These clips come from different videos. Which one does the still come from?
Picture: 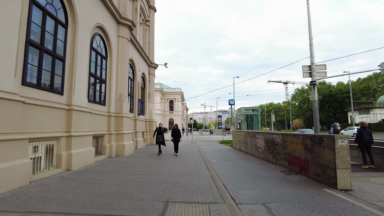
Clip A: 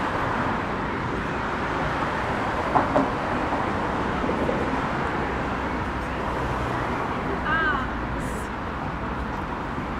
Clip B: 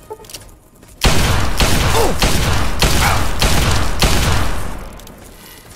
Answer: A